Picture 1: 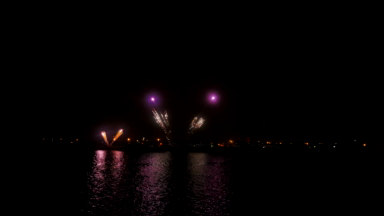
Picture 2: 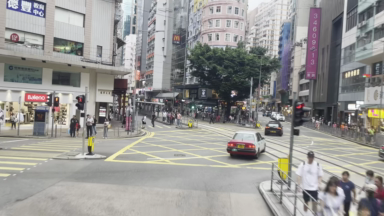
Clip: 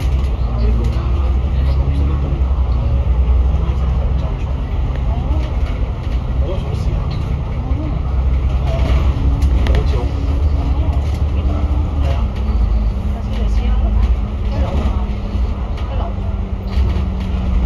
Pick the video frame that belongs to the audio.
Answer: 2